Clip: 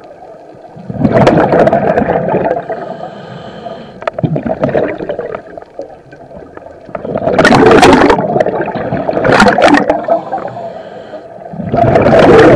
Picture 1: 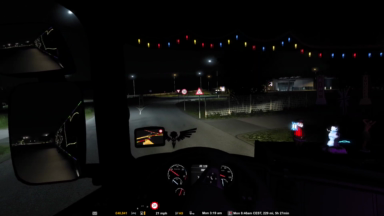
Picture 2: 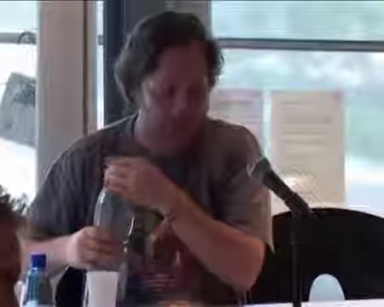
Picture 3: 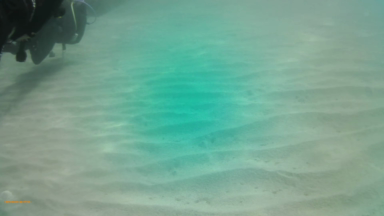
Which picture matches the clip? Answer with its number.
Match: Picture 3